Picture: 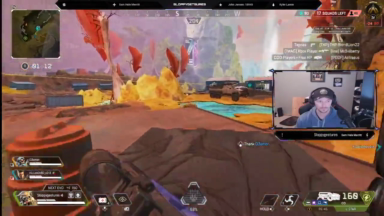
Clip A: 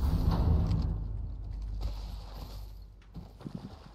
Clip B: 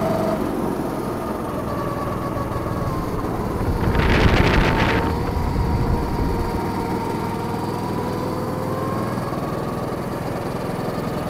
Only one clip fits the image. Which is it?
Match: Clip A